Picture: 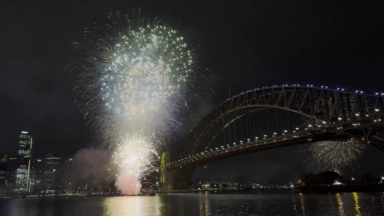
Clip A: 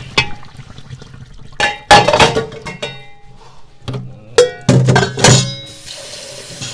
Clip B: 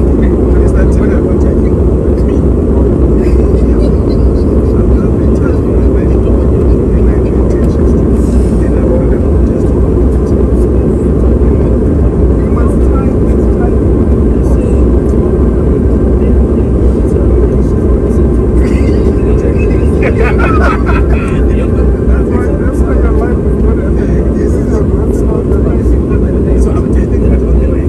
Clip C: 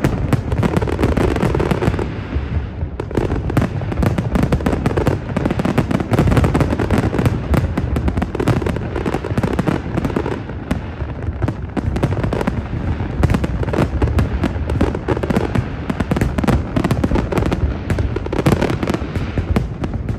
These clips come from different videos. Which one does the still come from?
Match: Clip C